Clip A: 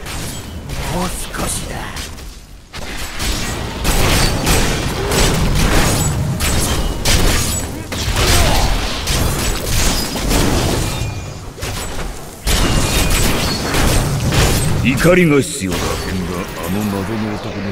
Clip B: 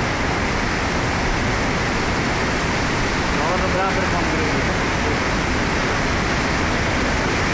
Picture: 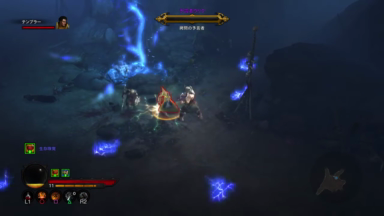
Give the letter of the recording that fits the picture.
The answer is A